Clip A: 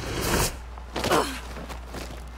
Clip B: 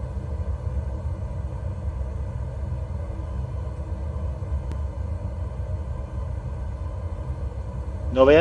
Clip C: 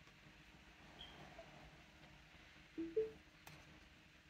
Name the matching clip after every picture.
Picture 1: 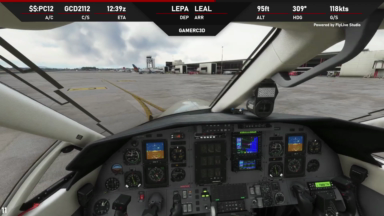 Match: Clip B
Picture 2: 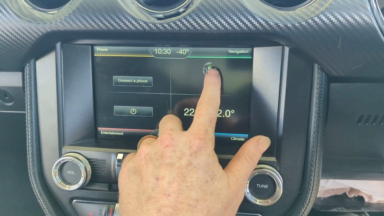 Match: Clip C